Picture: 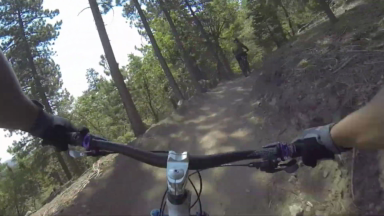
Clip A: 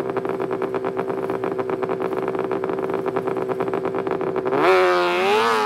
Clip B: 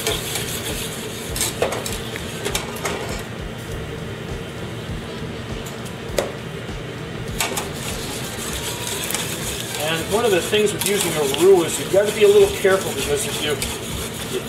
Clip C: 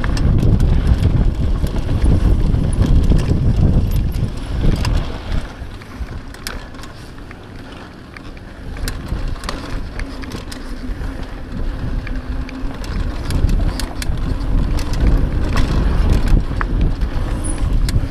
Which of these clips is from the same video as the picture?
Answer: C